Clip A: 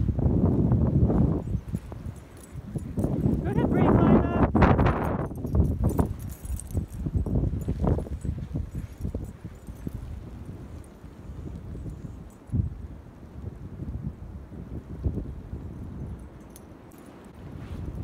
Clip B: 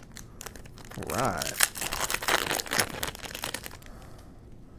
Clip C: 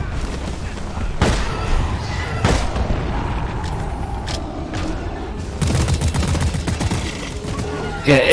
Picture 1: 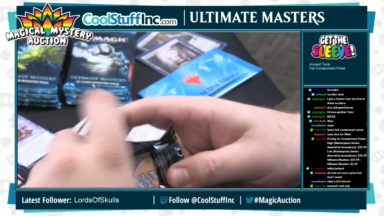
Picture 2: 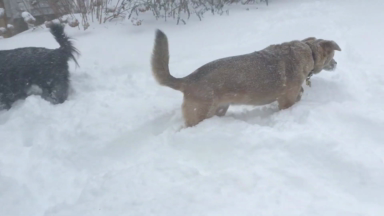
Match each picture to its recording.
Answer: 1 B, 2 A